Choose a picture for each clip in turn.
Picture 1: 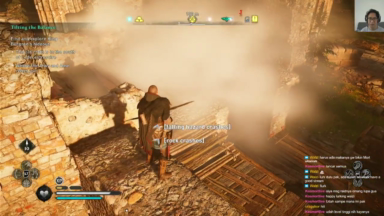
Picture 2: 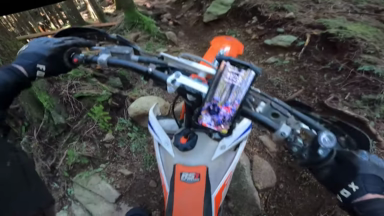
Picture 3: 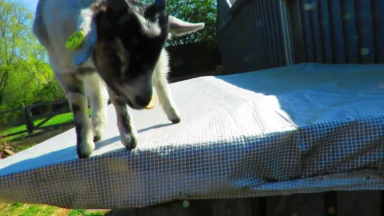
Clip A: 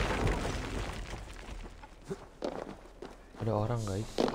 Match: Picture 1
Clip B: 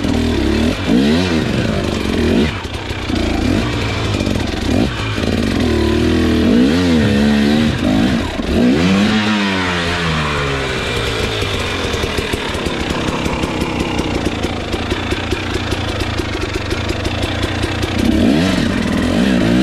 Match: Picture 2